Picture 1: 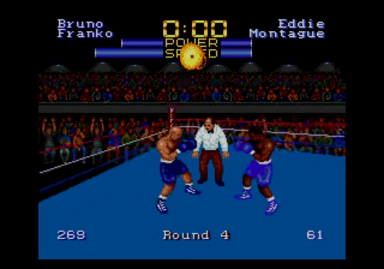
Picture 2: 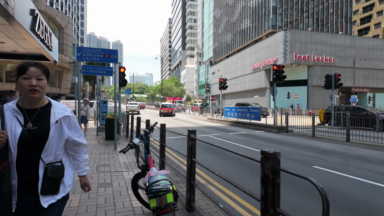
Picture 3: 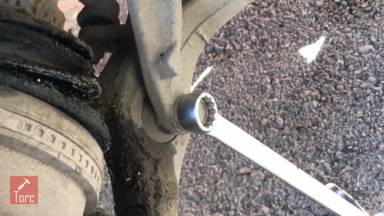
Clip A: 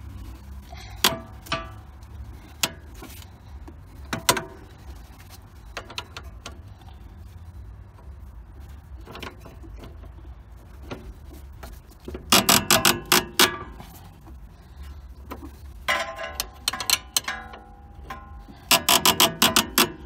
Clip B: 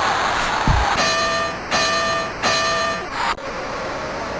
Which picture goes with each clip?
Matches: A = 3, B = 1